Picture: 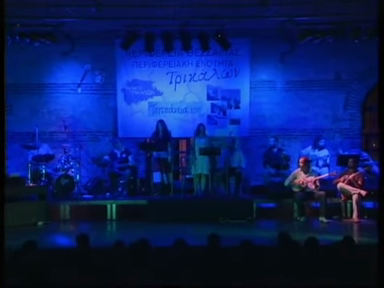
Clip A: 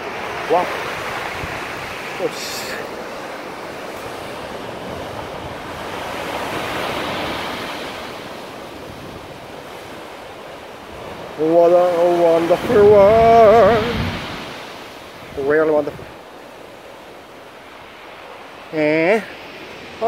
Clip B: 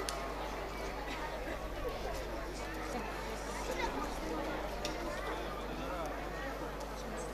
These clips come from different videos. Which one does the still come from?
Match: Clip B